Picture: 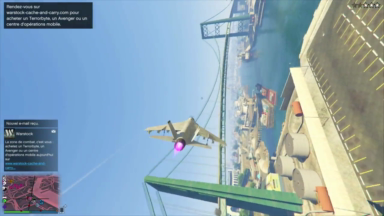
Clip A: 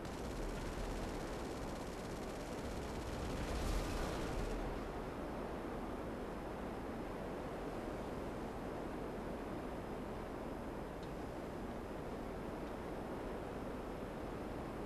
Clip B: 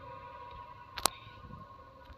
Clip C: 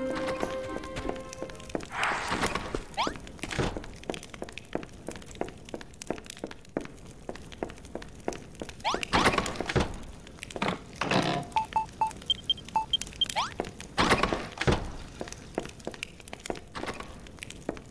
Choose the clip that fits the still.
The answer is A